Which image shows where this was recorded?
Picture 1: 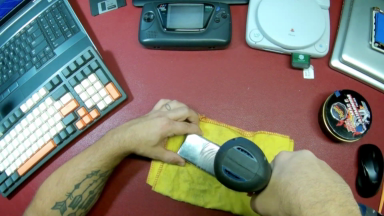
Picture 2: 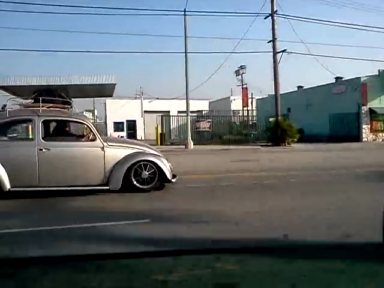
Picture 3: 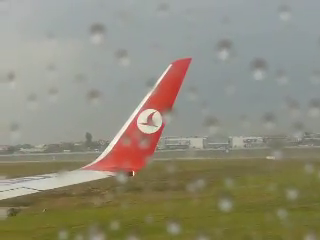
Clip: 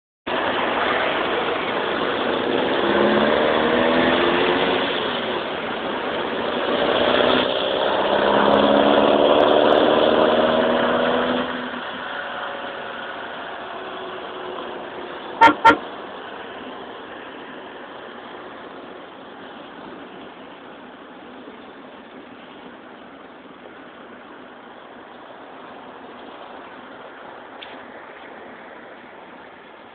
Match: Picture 2